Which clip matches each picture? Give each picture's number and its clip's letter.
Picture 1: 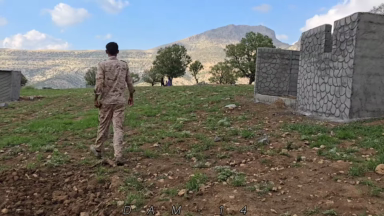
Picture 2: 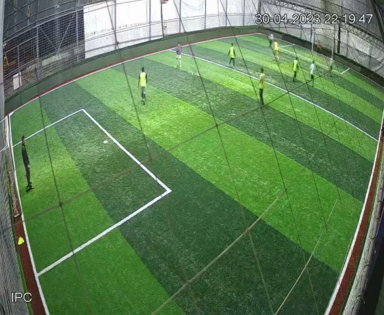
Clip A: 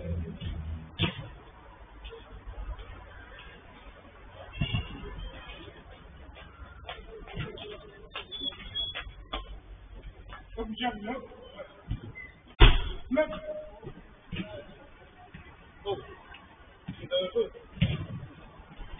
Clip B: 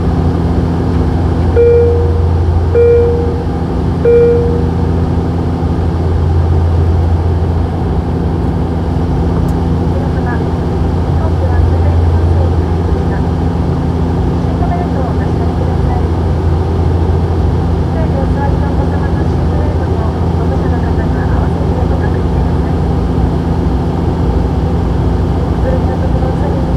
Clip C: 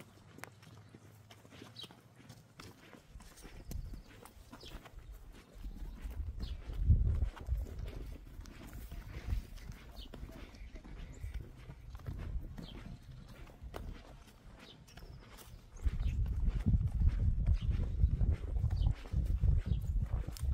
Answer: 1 C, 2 A